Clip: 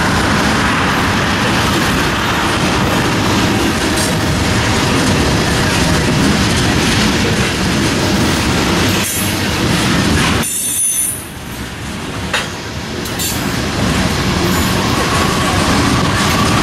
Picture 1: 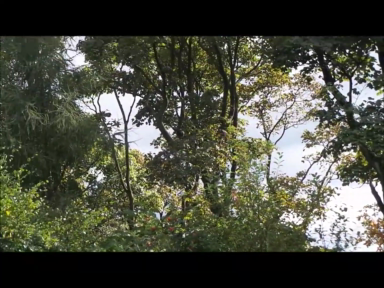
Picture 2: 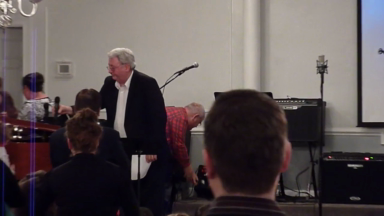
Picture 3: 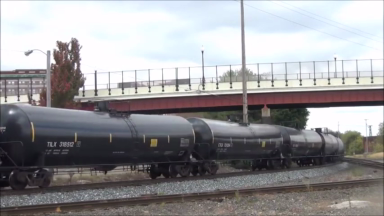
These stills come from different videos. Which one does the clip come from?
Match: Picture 3